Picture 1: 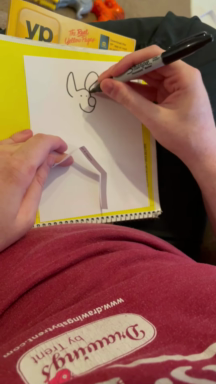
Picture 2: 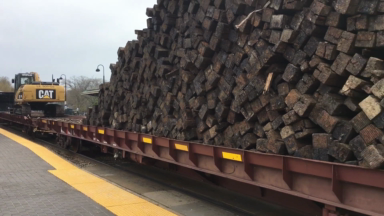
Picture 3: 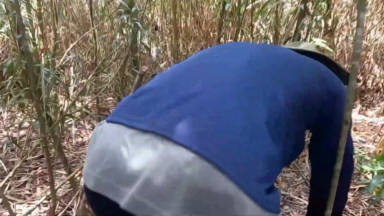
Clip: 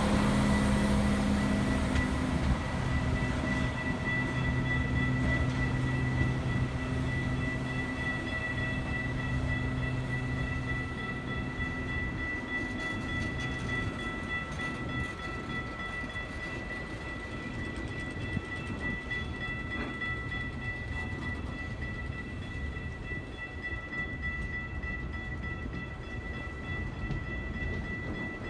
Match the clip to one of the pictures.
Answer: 2